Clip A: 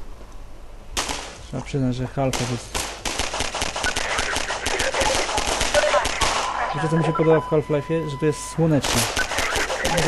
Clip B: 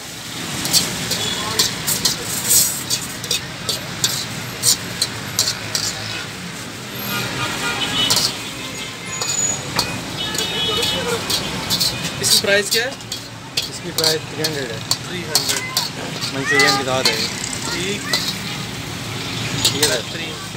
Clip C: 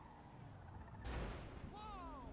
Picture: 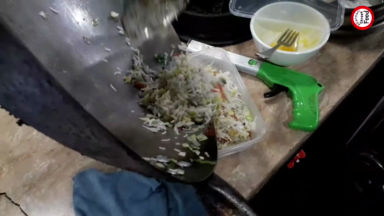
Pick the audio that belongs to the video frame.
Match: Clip B